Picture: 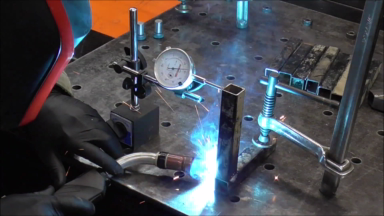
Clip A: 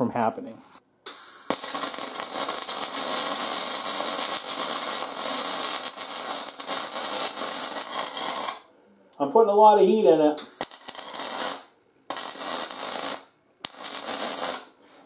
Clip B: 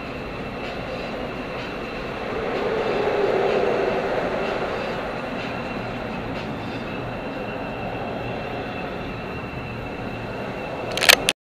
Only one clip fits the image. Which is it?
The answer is A